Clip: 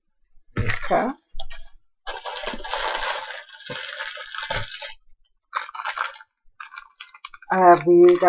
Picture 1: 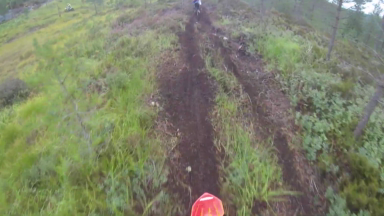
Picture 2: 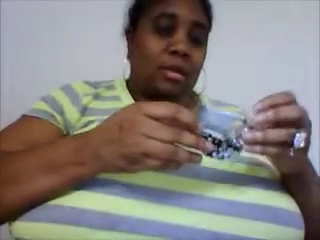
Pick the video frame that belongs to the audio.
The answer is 2